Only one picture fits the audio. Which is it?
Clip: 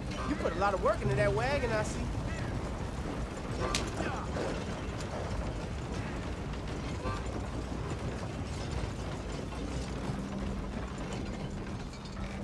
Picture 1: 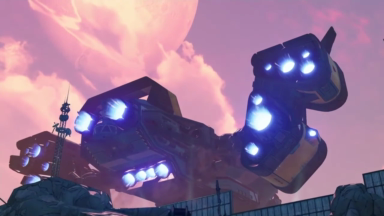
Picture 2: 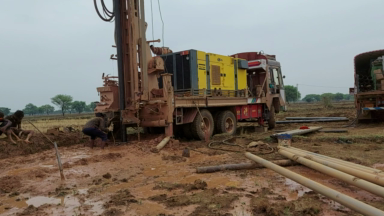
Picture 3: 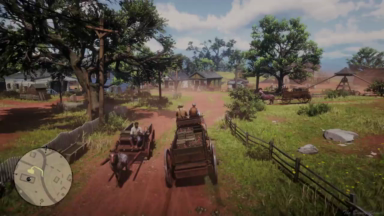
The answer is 3